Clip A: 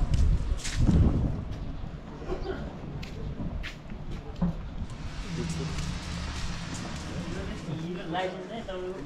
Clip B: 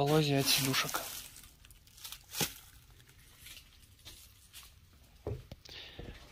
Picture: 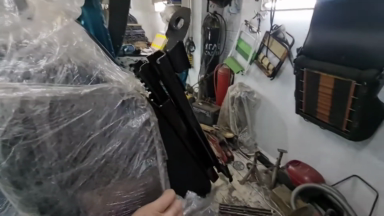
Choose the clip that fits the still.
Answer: B